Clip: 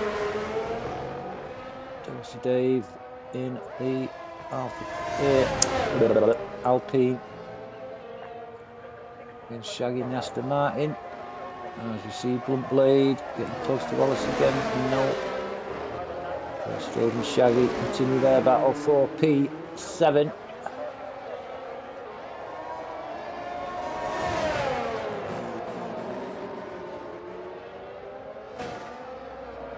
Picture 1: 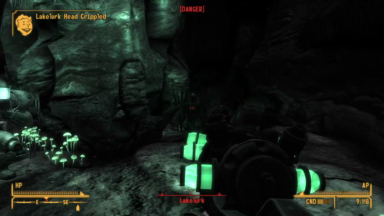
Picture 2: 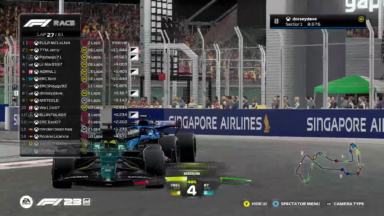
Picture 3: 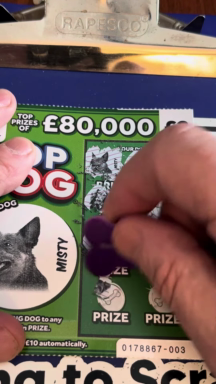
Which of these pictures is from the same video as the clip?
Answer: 2